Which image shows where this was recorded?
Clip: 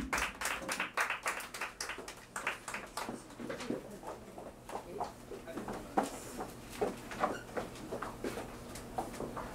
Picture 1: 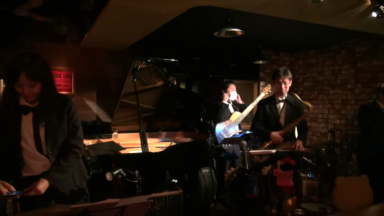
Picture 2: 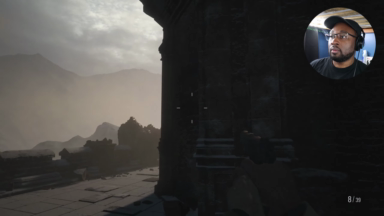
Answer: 1